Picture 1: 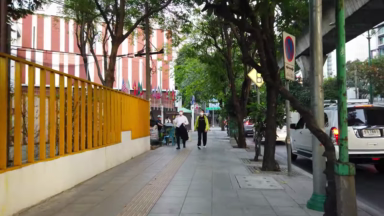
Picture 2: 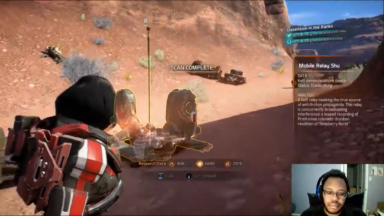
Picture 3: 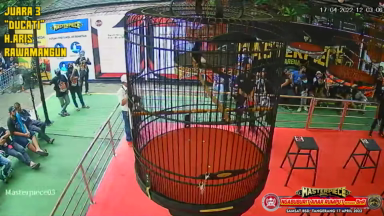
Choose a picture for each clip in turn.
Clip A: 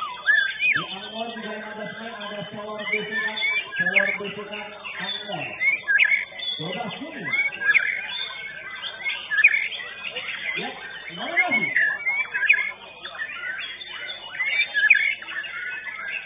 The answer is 3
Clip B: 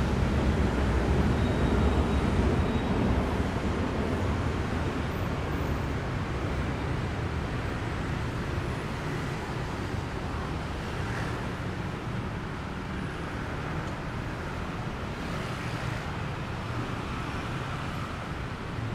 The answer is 1